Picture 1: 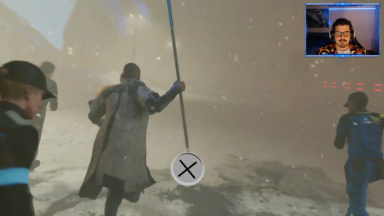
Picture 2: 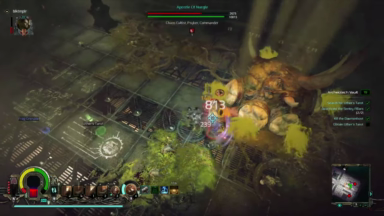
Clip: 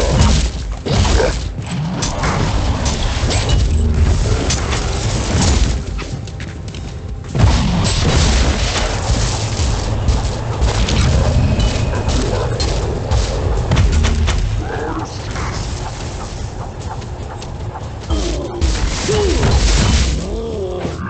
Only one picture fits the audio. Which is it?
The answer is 2